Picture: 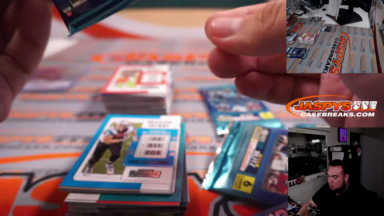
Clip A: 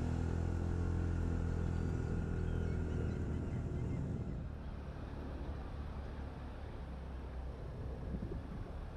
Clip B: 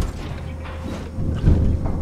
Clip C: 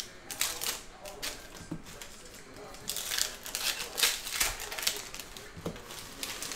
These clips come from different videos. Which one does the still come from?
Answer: C